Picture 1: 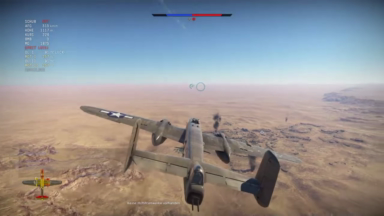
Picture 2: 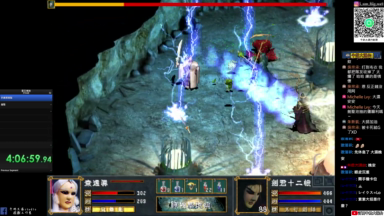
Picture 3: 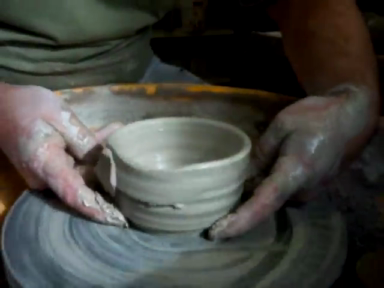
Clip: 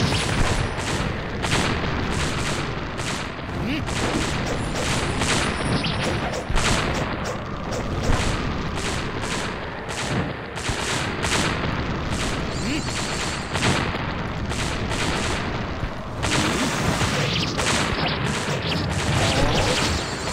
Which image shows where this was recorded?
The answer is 2